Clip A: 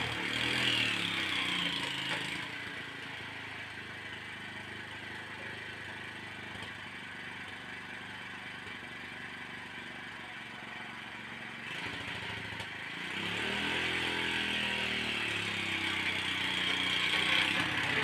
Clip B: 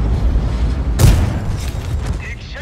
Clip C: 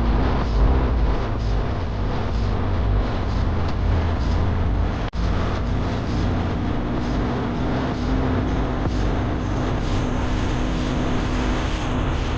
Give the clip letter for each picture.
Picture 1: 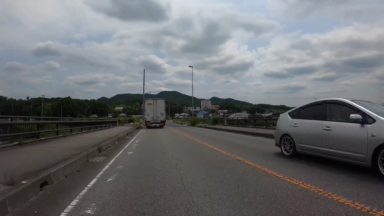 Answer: C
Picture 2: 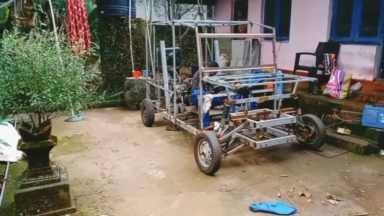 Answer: A